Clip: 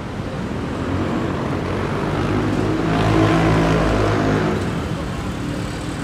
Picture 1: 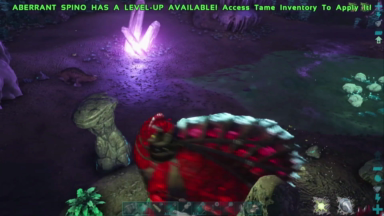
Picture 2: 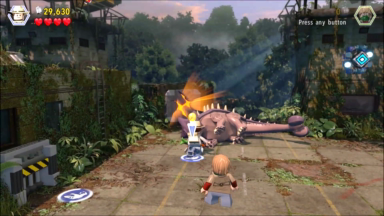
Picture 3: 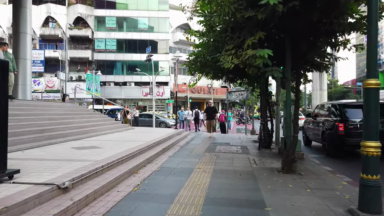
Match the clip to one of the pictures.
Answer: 3